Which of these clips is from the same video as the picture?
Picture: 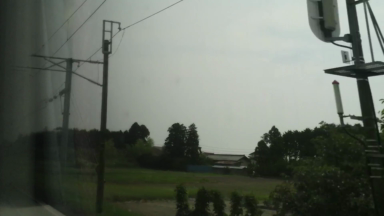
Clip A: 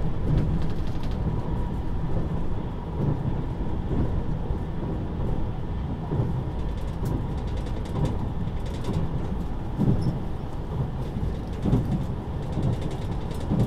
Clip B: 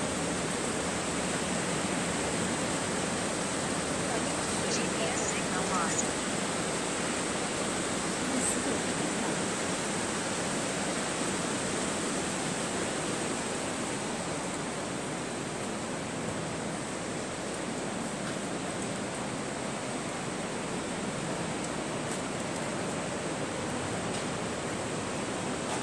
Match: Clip A